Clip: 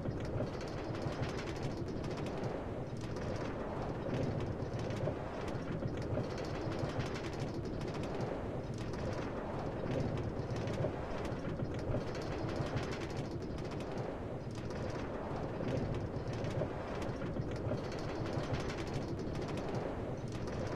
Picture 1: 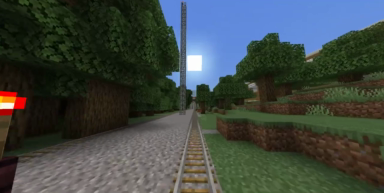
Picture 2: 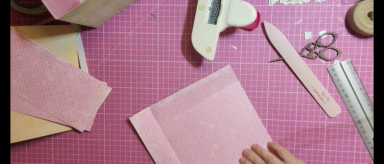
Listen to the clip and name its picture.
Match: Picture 1